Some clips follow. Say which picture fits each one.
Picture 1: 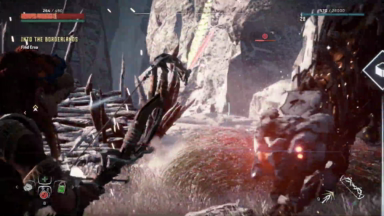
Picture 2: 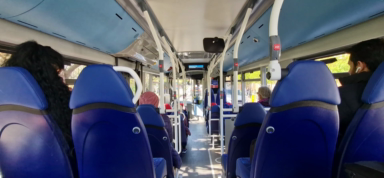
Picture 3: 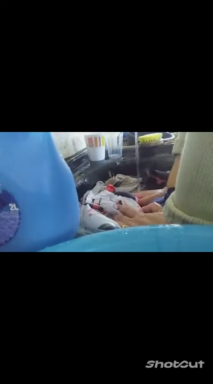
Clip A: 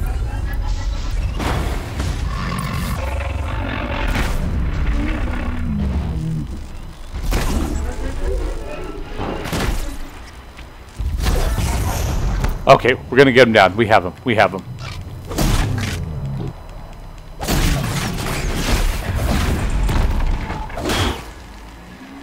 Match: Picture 1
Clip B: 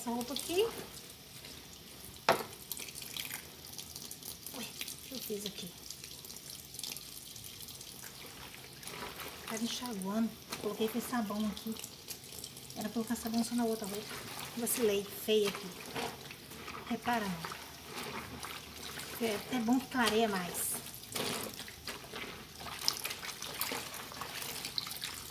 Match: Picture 3